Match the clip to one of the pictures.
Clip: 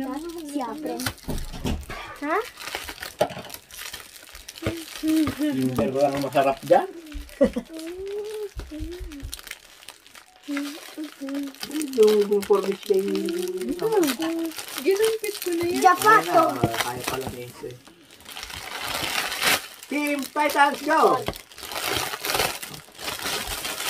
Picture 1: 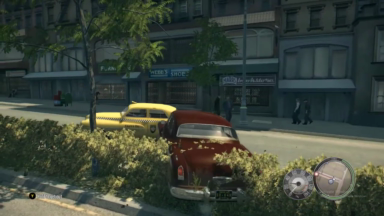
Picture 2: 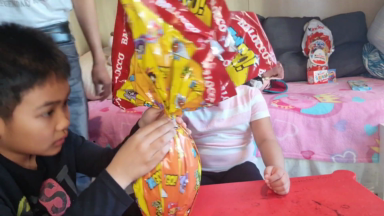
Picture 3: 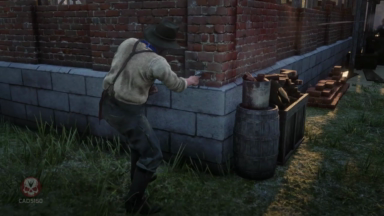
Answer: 2